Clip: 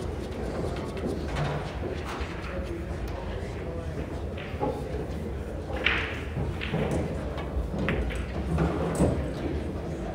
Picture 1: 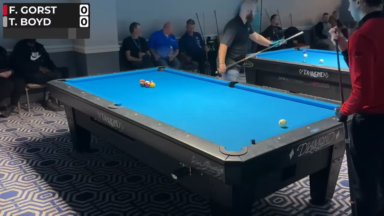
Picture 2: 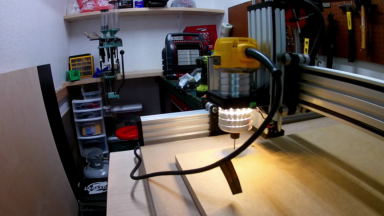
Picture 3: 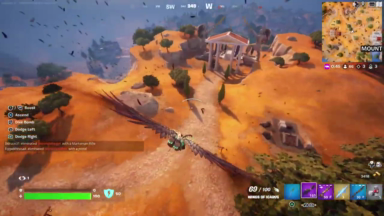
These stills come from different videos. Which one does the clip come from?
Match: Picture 1